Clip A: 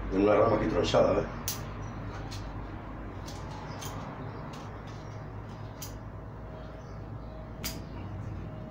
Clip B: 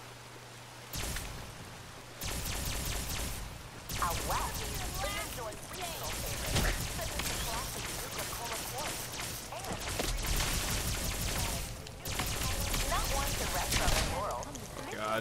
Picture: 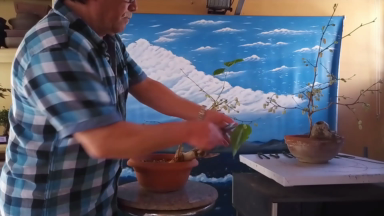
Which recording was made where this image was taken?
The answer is A